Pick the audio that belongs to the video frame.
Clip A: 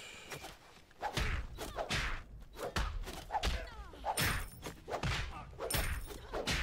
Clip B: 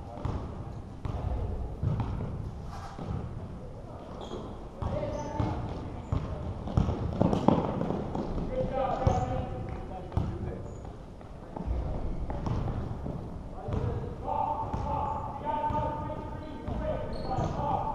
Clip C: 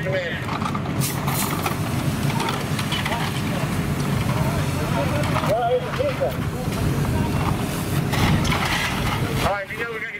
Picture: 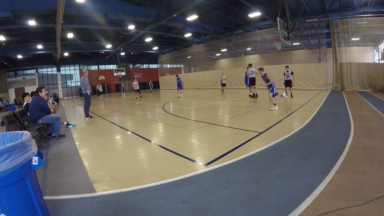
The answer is B